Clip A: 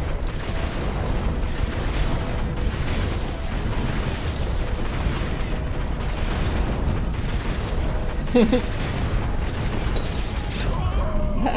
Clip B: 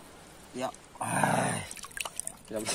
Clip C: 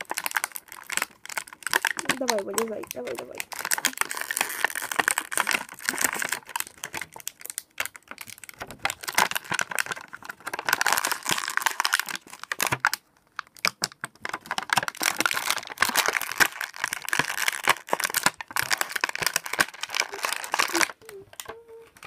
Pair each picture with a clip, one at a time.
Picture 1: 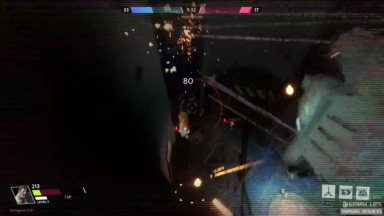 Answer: A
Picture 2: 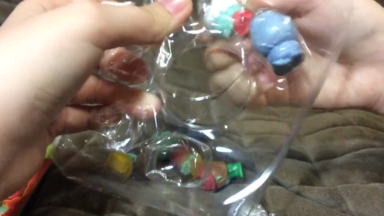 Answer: C